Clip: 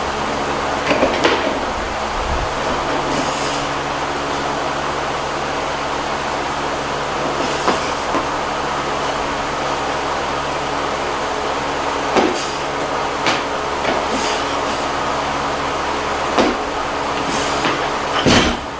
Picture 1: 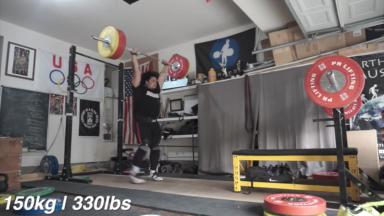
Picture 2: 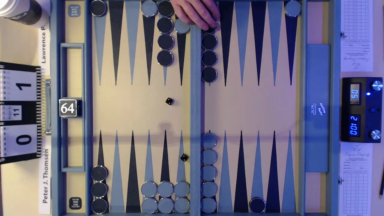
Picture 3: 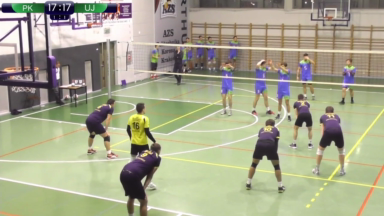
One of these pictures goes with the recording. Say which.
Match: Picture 1